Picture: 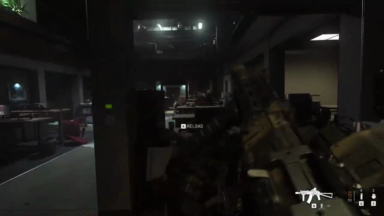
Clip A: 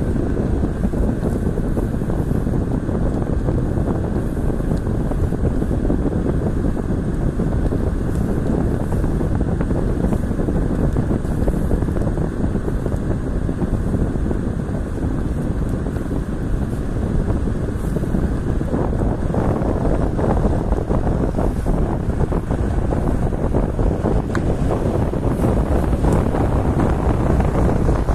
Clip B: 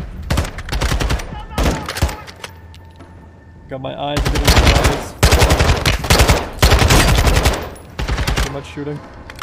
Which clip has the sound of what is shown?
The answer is B